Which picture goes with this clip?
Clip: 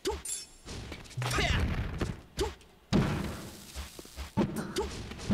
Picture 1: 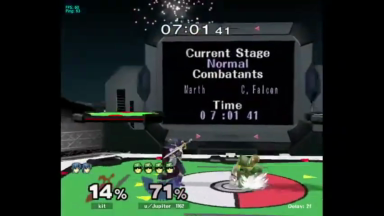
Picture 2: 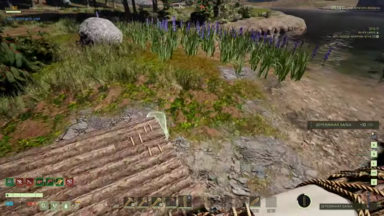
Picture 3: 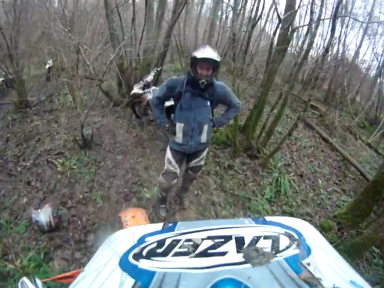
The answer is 1